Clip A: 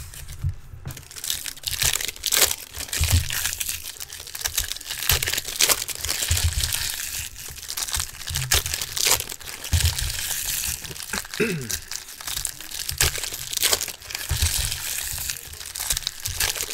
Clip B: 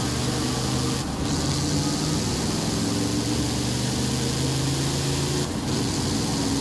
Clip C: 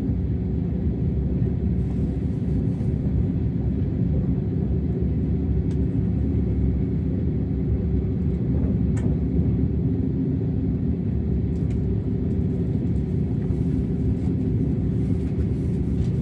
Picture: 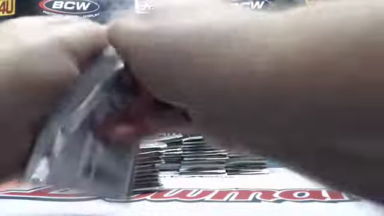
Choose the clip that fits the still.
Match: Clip A